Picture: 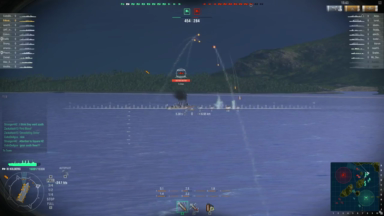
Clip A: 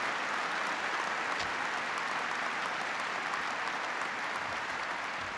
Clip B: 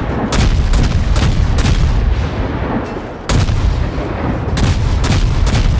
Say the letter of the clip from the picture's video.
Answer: B